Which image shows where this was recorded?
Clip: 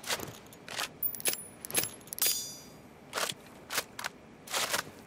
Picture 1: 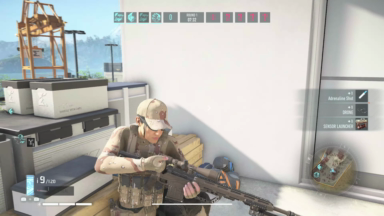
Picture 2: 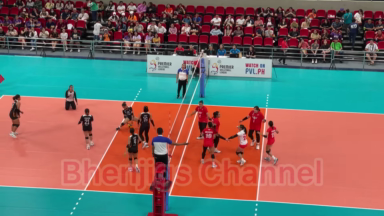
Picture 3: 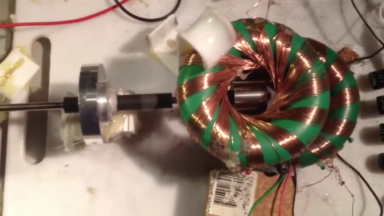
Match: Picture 1